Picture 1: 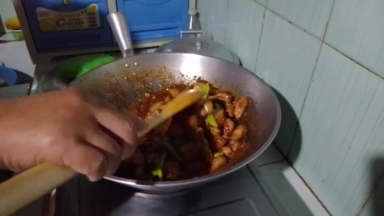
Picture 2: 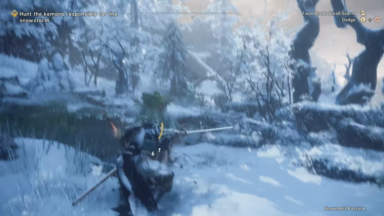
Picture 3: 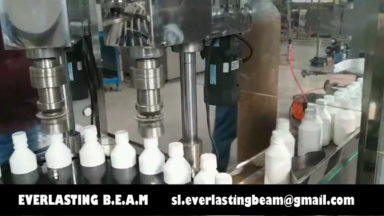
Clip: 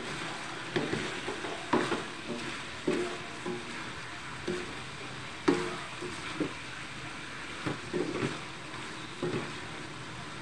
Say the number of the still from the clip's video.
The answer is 1